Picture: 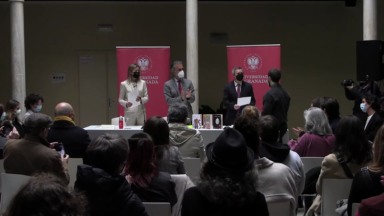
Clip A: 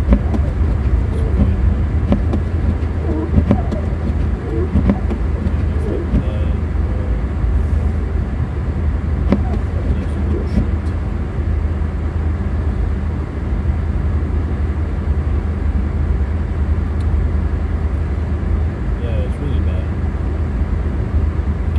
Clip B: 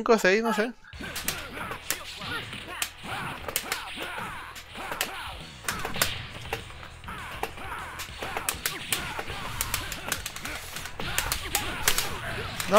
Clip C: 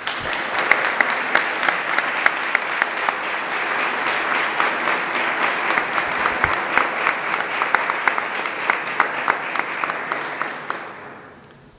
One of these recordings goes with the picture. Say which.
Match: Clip C